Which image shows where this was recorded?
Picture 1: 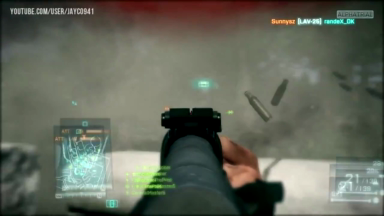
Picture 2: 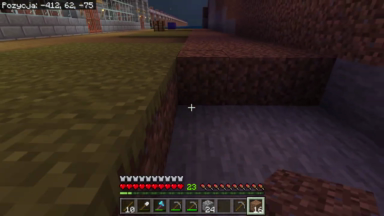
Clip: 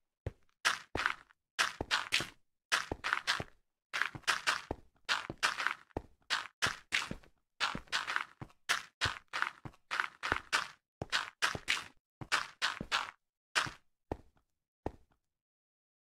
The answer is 2